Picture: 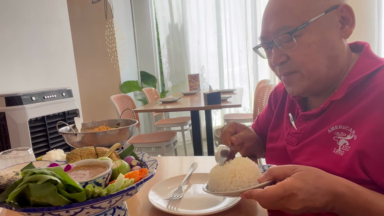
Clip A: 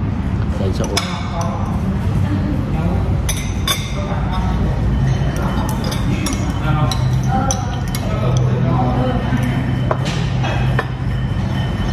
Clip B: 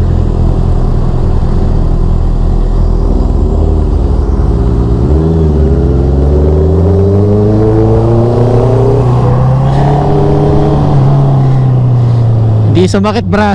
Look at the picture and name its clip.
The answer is A